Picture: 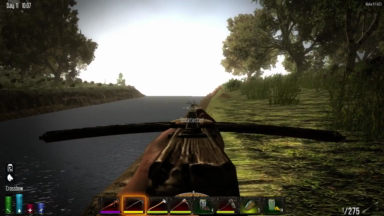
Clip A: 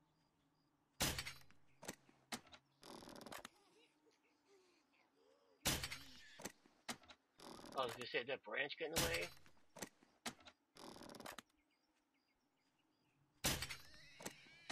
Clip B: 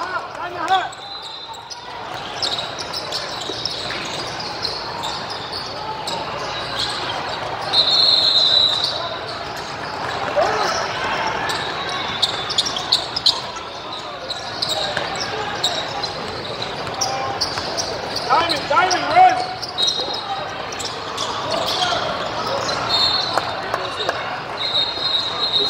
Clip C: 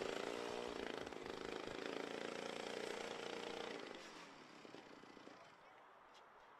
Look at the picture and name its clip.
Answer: A